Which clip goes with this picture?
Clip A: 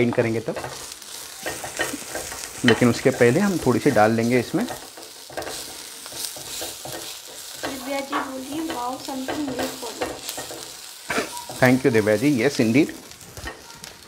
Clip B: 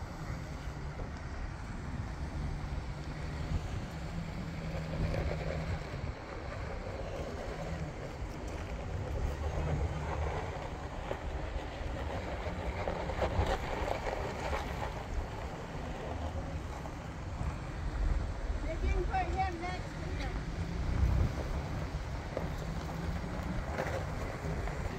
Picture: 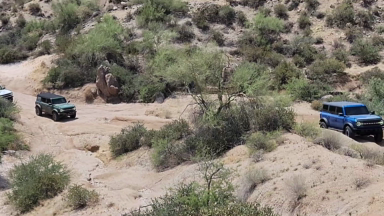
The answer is B